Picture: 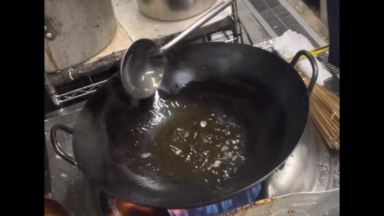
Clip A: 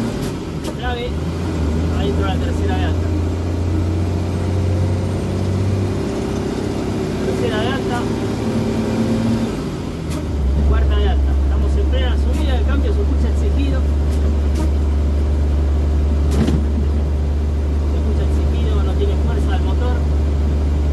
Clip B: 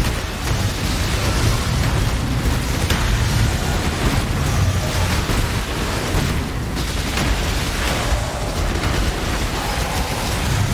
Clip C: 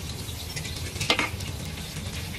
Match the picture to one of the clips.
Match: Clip C